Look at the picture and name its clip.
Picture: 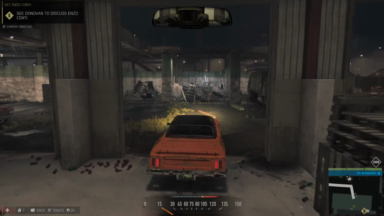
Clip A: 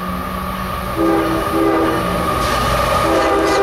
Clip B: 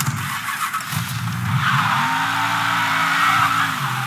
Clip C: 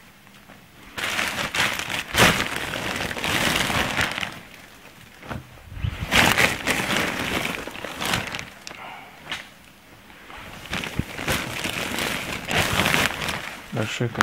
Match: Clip B